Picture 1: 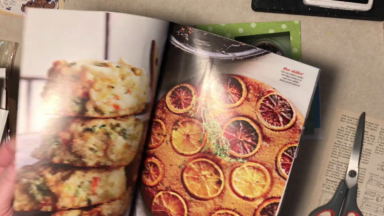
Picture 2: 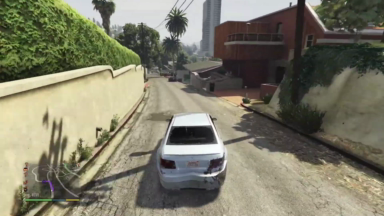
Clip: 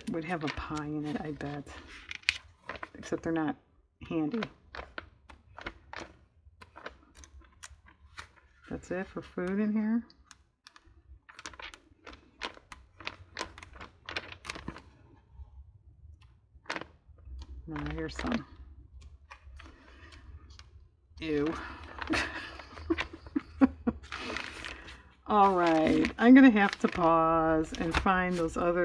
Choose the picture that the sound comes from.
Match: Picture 1